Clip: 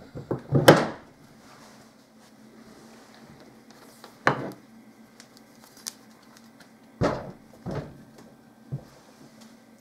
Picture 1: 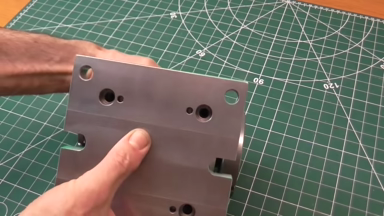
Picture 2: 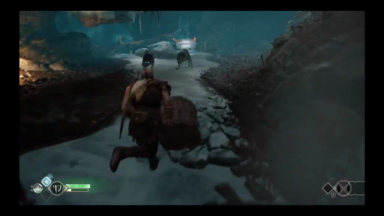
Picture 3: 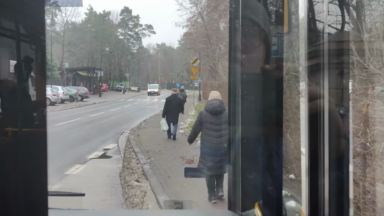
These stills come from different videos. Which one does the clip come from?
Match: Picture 1